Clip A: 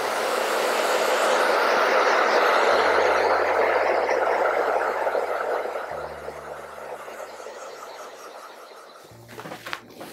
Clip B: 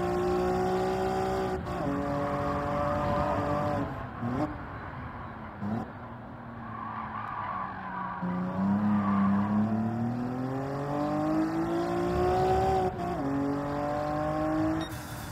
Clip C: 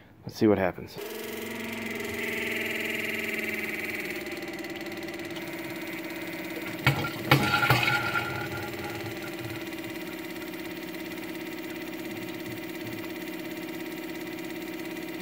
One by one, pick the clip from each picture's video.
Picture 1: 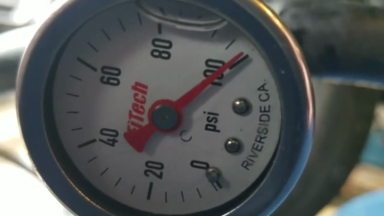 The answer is C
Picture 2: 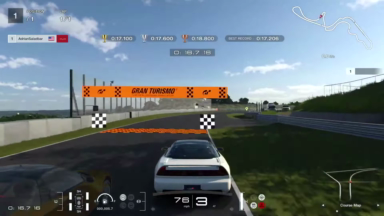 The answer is B